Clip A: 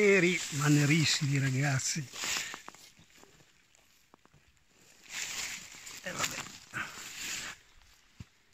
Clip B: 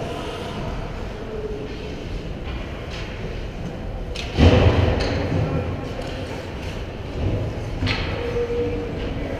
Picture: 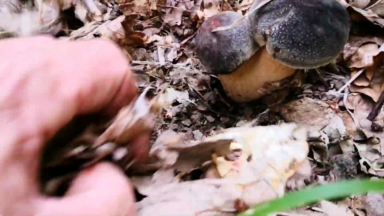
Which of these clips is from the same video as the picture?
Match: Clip A